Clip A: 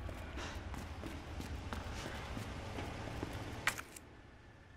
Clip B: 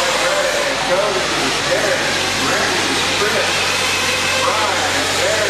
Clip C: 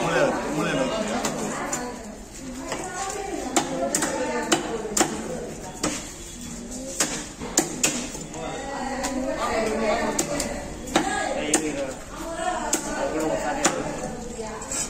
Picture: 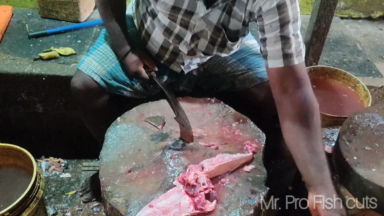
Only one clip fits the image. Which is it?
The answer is C